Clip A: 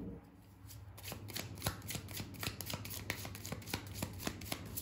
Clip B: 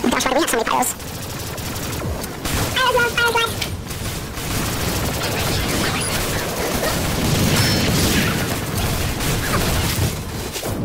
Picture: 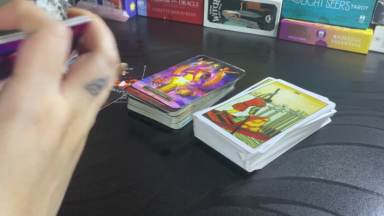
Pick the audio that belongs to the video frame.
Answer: A